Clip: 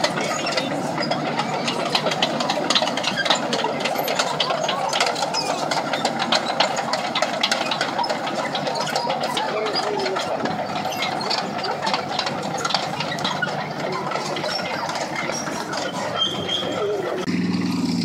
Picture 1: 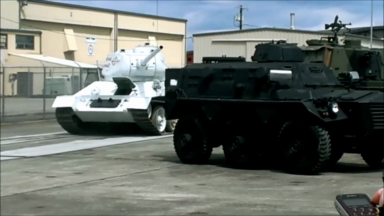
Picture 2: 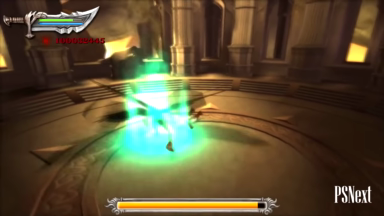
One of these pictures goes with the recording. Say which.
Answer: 1